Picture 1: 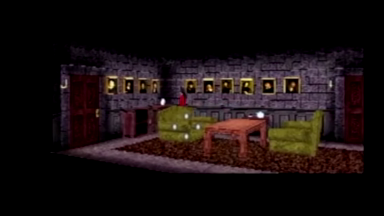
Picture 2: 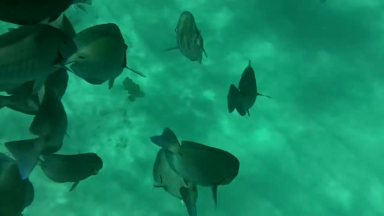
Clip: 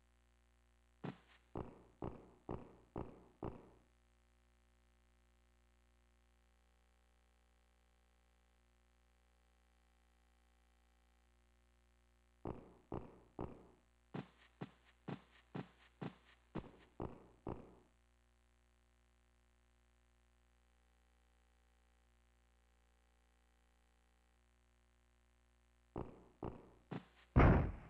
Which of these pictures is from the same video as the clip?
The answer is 1